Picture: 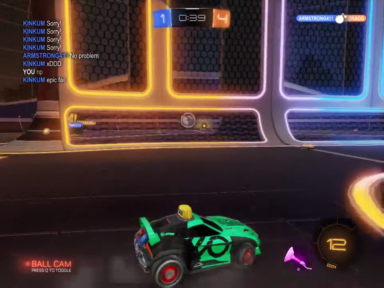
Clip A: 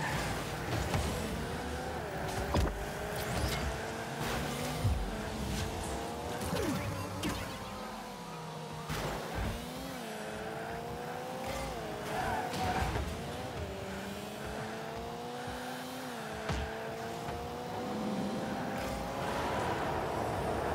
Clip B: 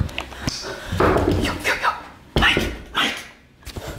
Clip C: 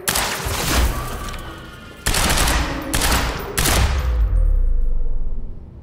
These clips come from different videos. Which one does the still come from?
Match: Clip A